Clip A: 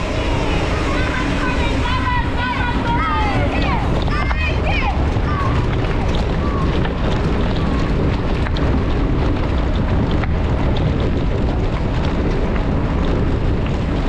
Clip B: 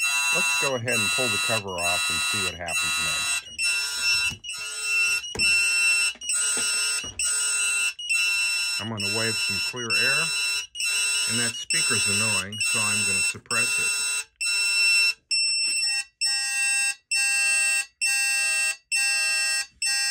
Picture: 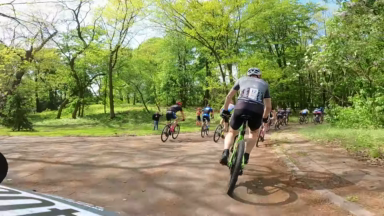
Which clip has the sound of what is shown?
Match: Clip A